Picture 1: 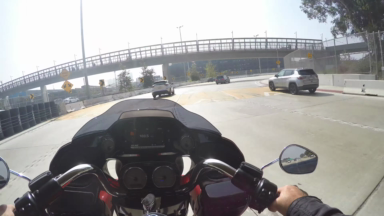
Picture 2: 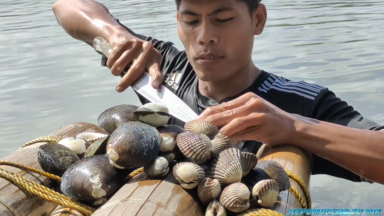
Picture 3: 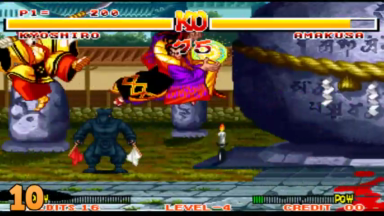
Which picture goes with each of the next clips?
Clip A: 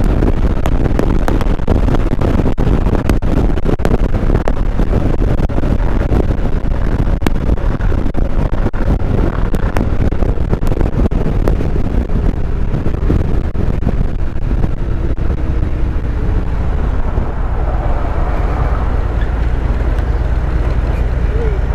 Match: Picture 1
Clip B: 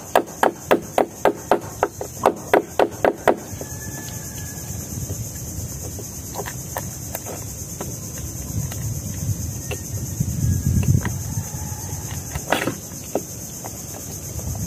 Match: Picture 2